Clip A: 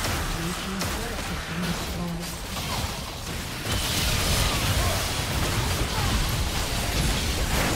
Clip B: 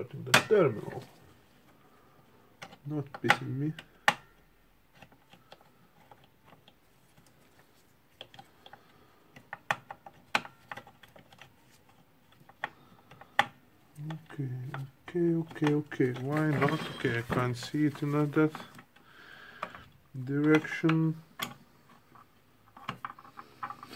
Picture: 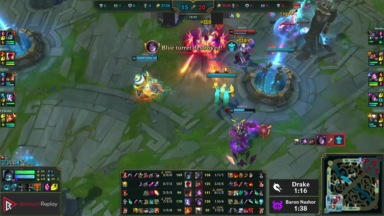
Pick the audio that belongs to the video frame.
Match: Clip A